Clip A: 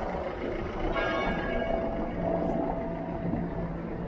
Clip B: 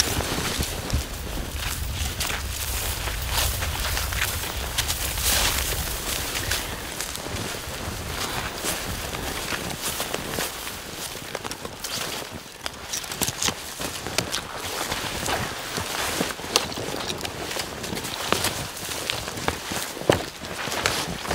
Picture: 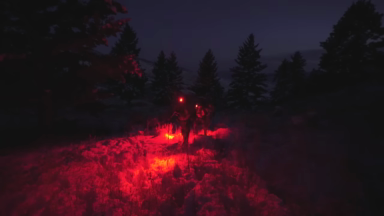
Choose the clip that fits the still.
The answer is B